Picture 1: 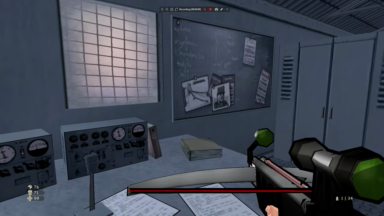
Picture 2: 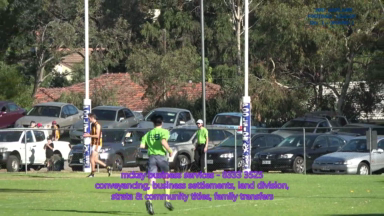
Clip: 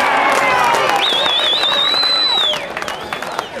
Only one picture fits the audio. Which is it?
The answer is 2